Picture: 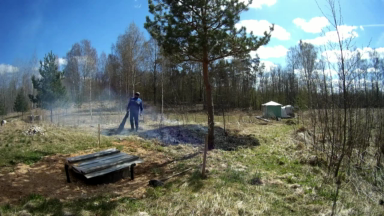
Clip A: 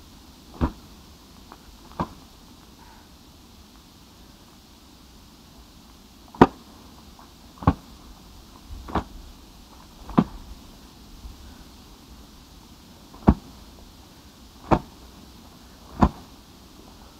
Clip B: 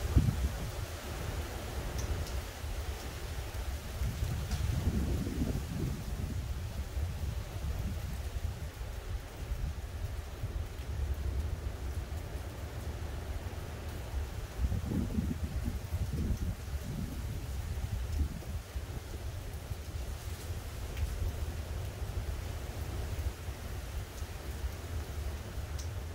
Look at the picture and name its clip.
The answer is A